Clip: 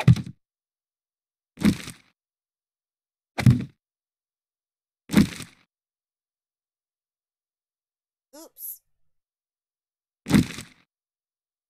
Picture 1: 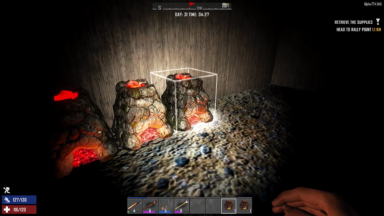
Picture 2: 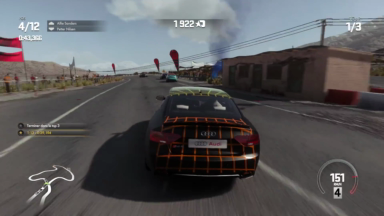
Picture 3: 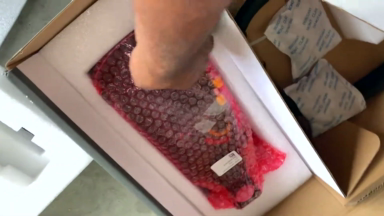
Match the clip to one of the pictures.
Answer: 1